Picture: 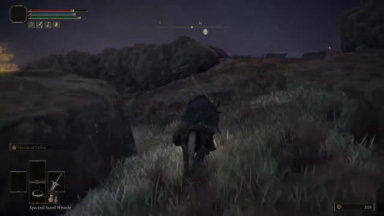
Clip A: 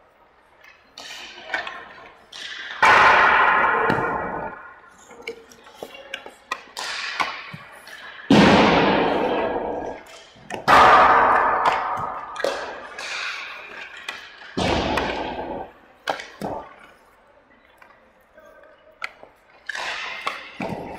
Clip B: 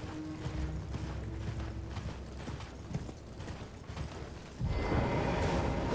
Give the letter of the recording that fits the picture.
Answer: B